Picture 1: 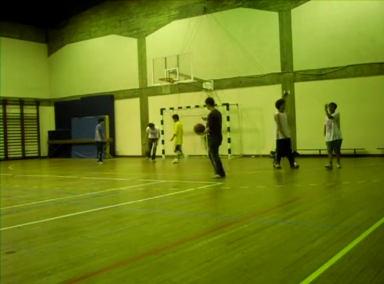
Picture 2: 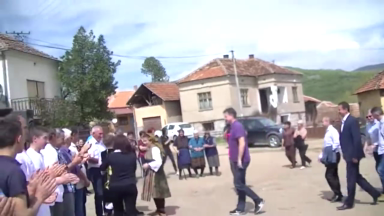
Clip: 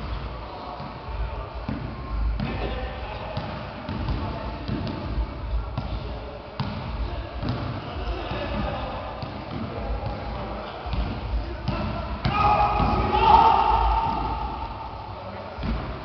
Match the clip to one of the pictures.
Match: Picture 1